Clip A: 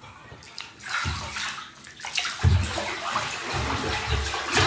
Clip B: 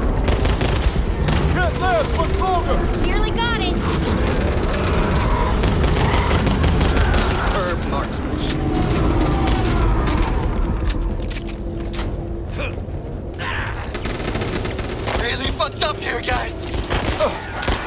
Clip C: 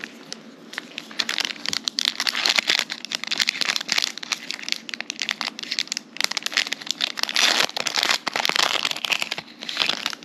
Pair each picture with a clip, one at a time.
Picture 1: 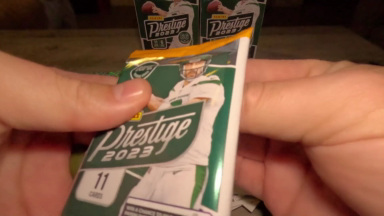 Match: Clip C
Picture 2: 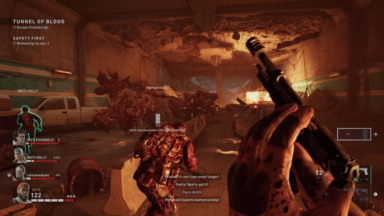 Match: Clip B